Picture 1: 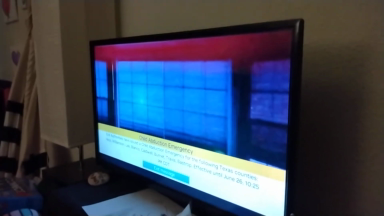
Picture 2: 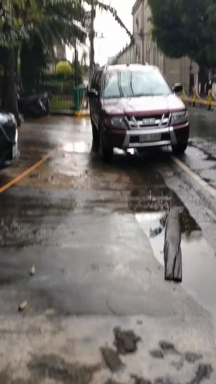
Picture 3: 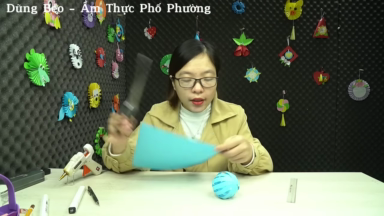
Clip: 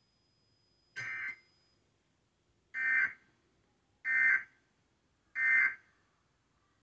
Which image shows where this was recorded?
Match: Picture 1